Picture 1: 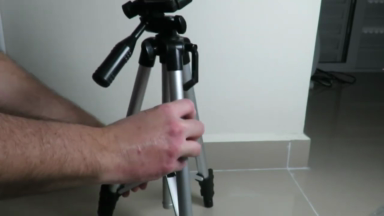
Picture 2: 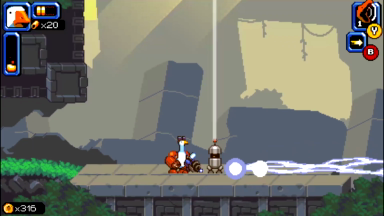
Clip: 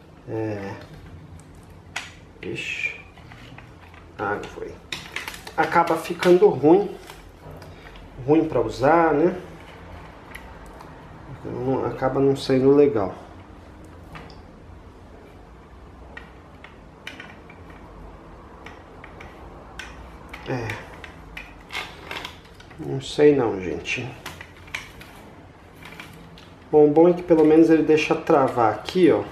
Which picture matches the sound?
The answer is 1